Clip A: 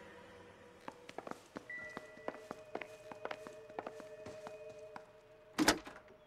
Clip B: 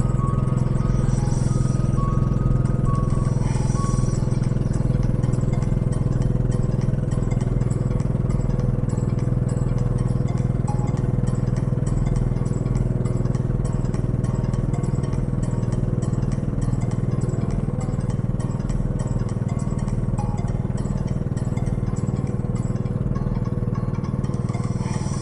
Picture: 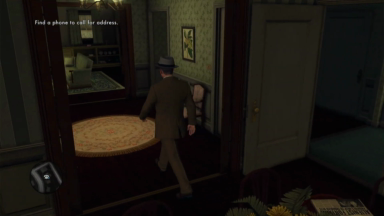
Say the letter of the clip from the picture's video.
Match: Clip A